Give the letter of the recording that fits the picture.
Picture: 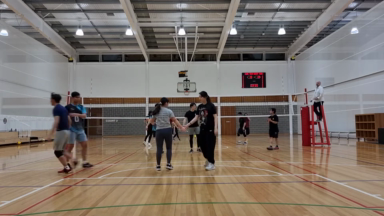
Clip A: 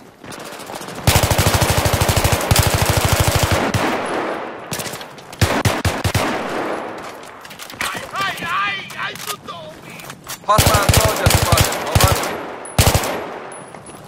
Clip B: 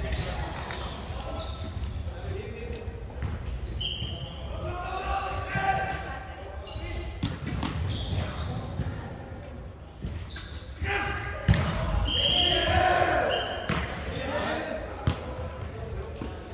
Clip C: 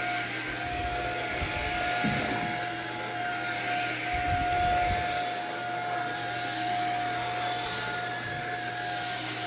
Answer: B